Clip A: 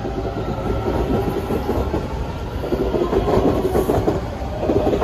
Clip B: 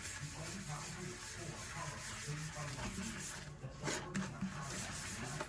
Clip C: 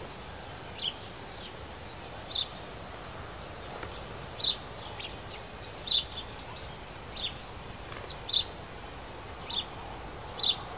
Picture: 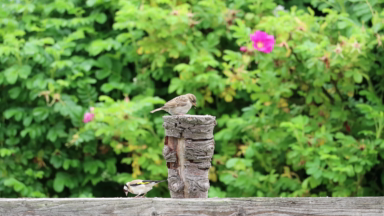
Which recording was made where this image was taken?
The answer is C